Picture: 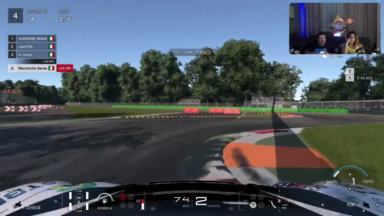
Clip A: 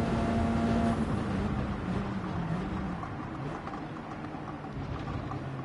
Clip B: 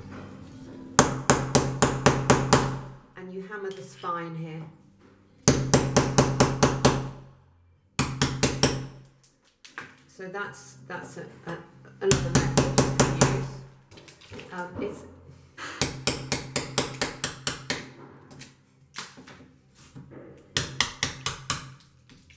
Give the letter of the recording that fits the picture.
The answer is A